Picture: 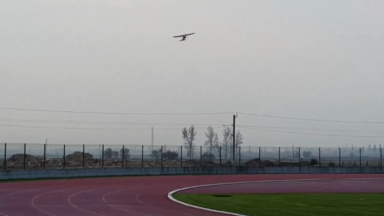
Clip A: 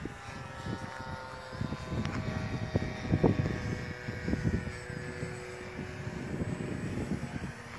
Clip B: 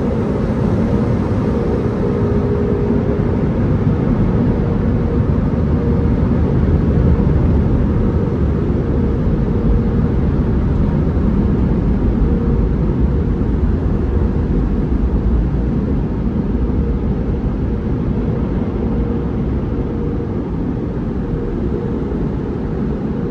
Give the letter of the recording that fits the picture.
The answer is A